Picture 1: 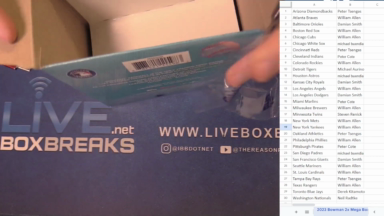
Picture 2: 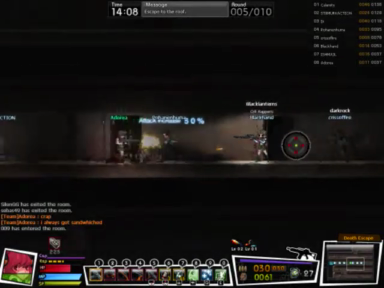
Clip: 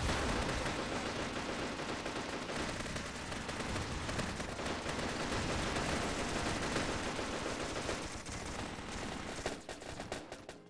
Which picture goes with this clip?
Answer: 2